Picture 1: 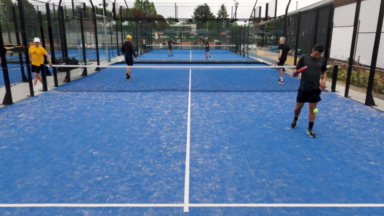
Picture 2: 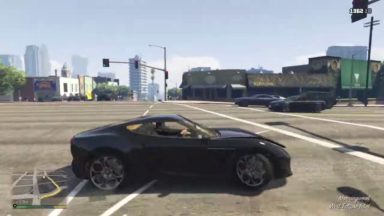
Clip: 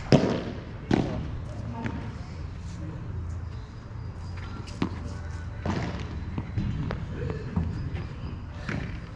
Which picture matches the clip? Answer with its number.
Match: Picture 1